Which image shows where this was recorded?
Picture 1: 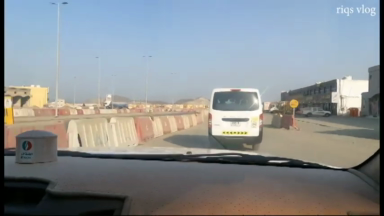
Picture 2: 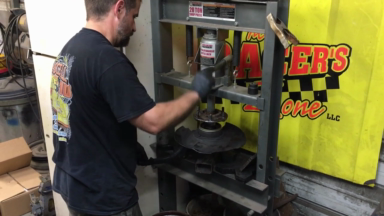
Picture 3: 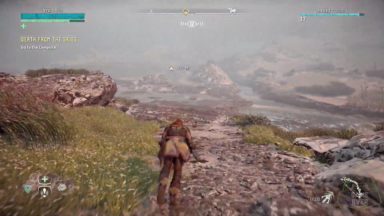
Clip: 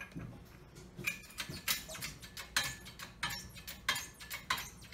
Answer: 2